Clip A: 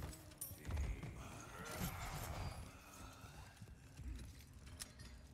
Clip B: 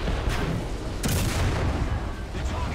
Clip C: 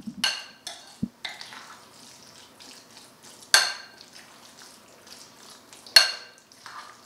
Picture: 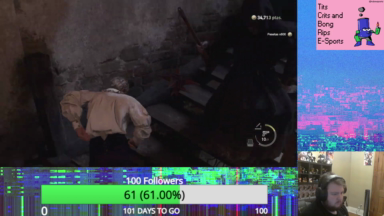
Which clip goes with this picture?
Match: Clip A